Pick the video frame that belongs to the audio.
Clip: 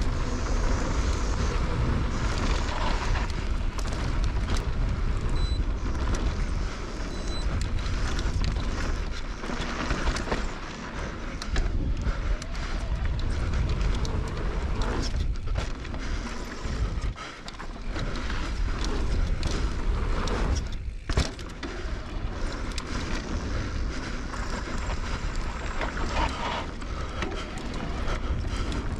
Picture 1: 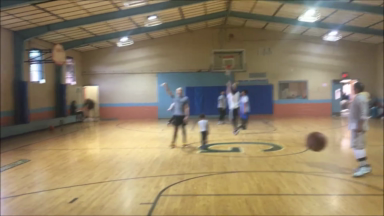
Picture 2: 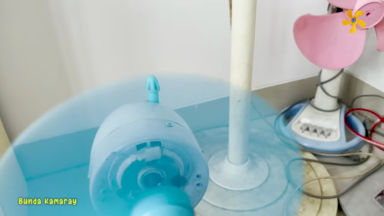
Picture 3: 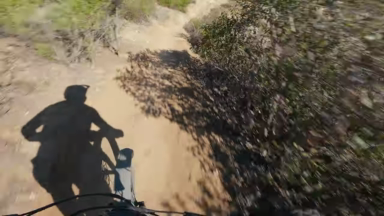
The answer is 3